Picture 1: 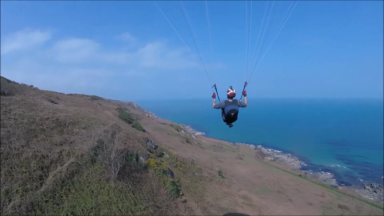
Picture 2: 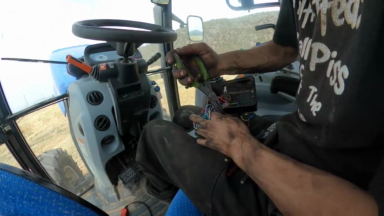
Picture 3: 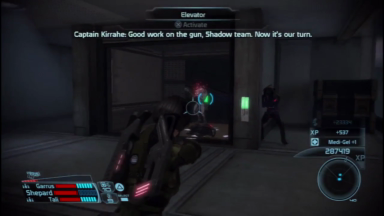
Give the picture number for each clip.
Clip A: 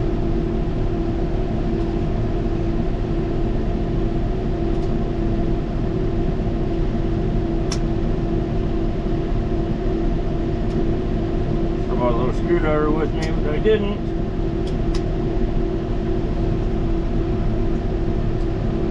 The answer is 2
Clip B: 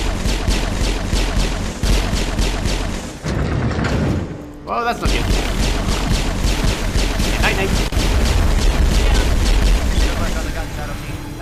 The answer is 3